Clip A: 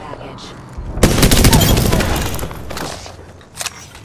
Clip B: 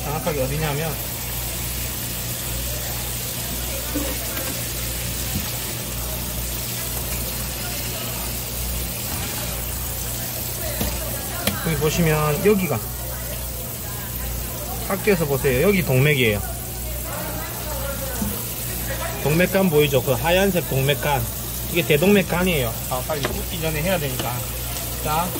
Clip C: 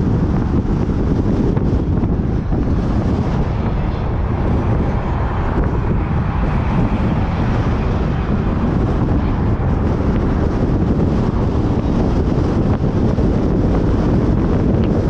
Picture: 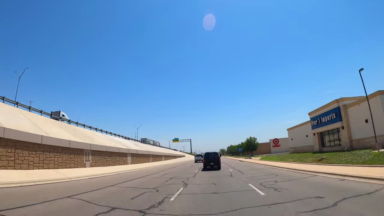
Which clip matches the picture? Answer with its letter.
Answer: C